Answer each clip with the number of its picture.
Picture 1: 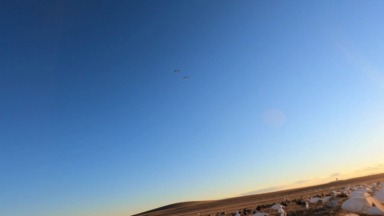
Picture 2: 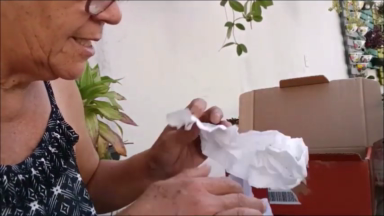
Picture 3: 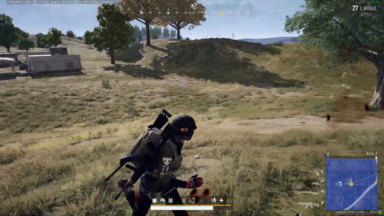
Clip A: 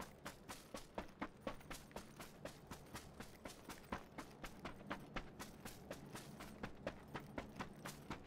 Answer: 3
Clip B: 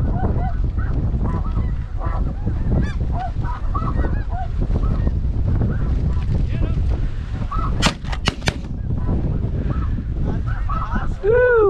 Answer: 1